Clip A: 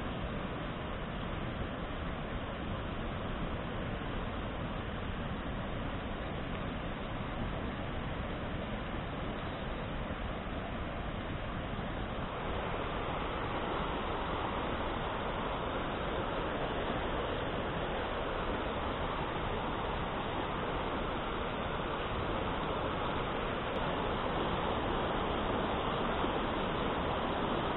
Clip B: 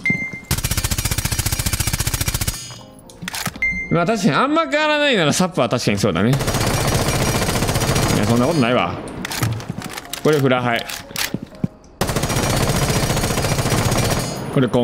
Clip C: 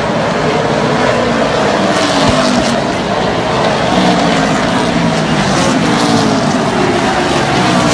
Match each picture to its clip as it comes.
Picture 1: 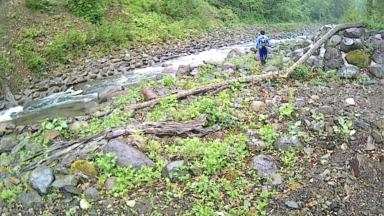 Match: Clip A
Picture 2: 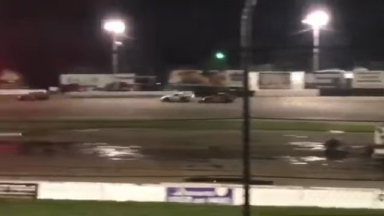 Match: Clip C